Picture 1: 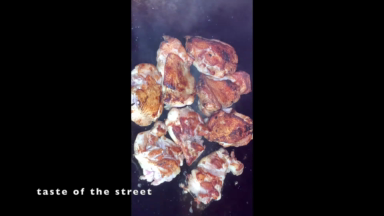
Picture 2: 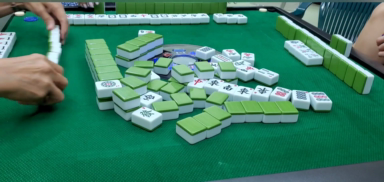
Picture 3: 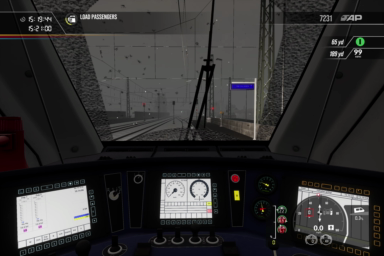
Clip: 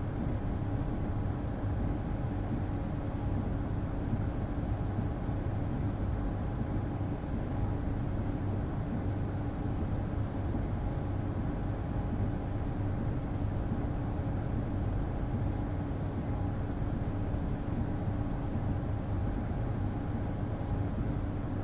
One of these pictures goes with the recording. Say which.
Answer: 3